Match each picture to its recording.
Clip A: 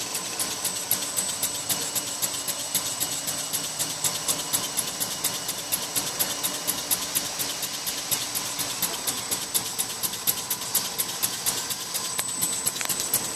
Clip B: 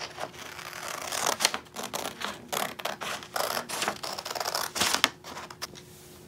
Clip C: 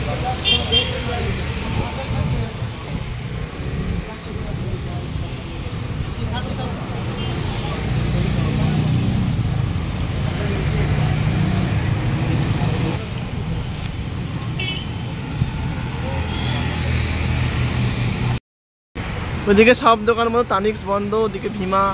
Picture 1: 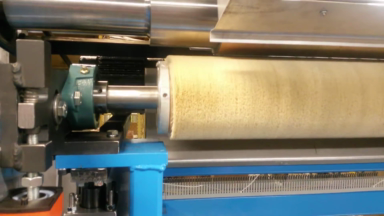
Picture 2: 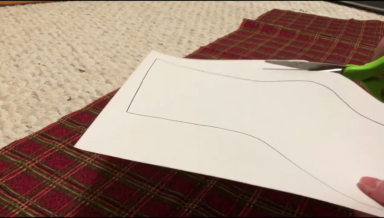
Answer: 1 A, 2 B